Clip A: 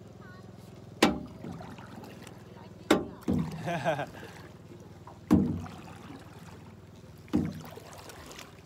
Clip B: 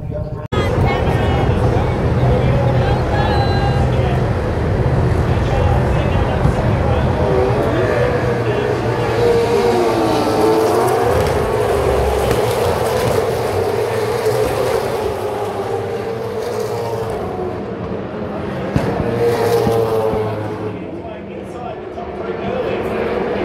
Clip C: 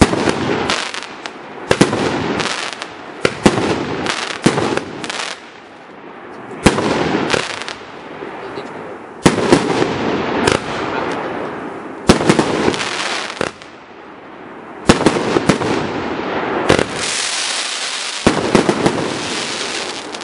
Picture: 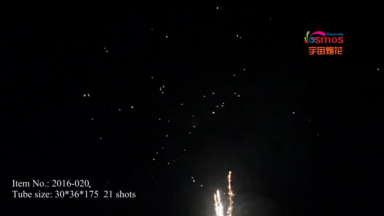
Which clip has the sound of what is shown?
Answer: C